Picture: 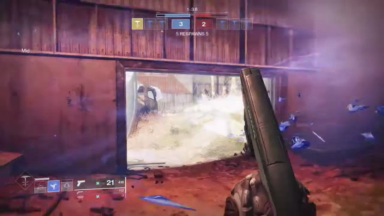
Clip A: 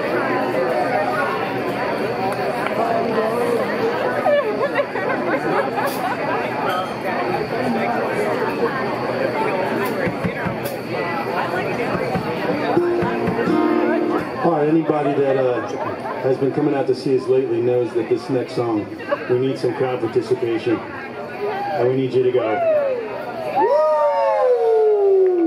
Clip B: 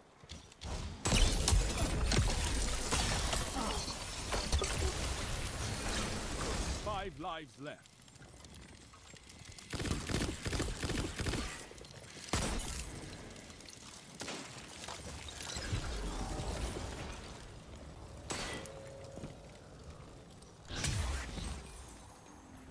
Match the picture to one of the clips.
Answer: B